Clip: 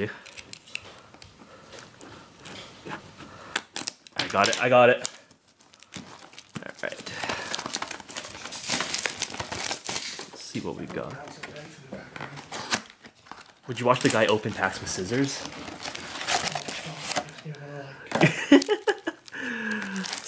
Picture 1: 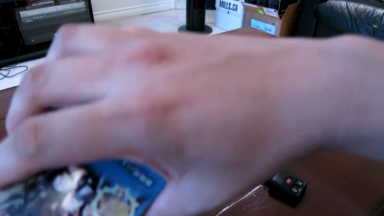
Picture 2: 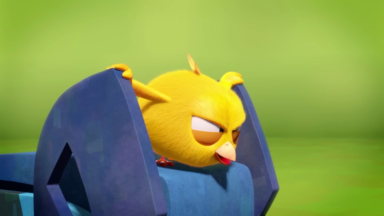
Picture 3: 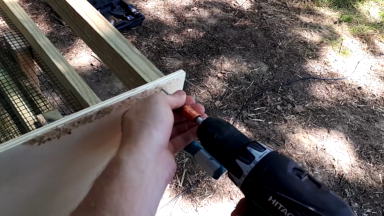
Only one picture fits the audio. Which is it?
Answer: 1